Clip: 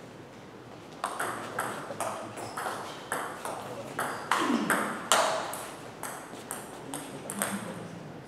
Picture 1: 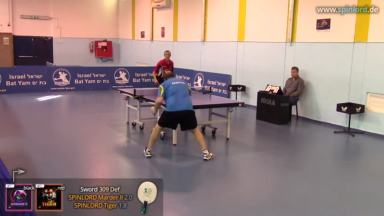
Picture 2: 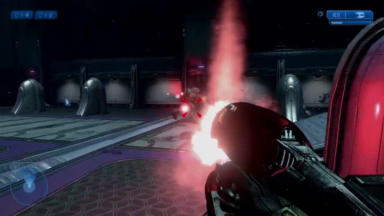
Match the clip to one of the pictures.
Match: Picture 1